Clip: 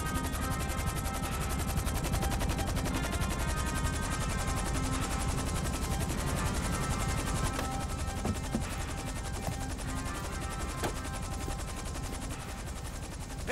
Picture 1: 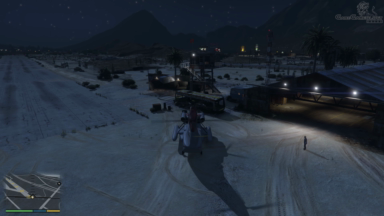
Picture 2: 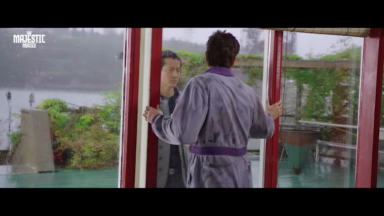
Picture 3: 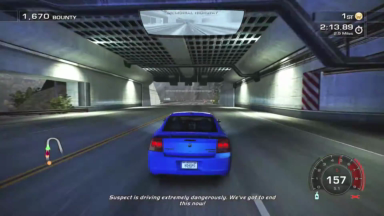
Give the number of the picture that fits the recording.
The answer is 1